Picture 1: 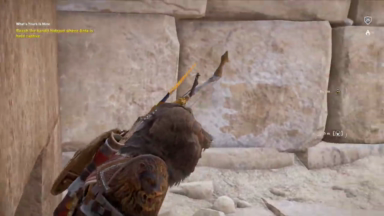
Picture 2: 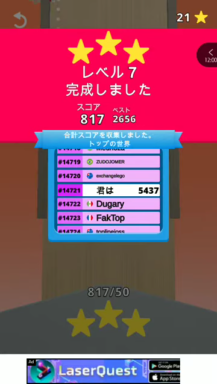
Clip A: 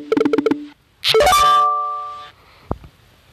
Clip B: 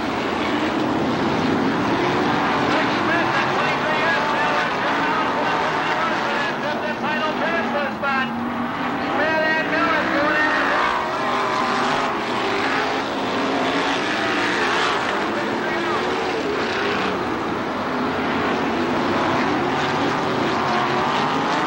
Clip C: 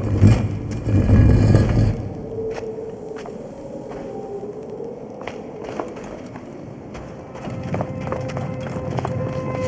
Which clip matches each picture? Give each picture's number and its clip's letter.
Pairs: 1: C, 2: A